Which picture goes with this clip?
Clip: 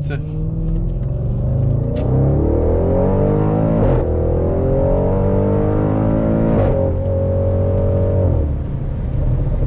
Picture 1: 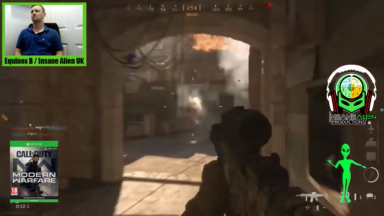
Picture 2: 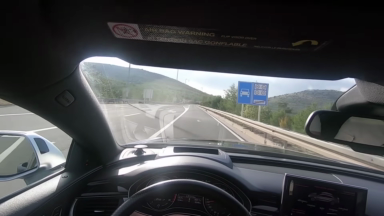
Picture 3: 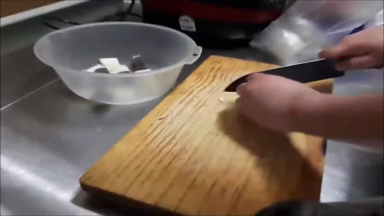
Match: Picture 2